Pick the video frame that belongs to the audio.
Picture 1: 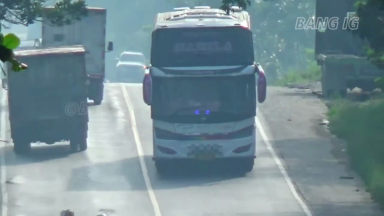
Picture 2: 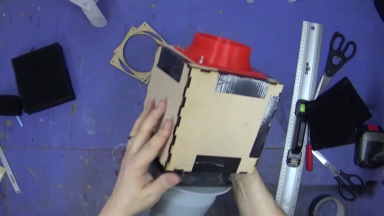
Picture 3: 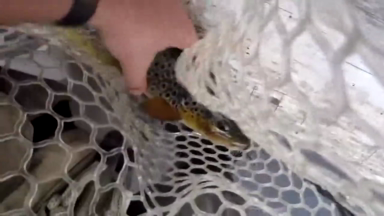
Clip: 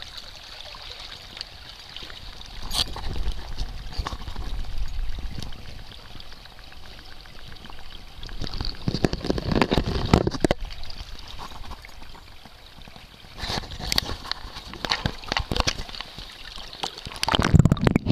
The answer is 3